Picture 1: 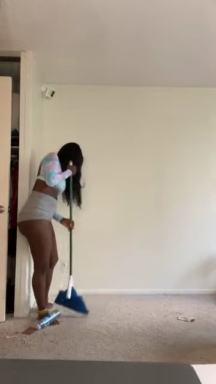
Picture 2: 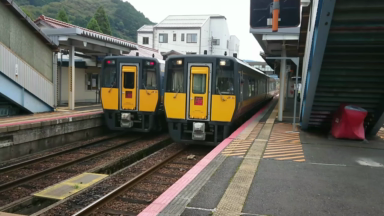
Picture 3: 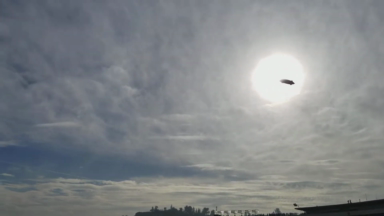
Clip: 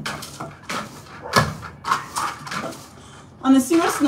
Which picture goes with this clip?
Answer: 1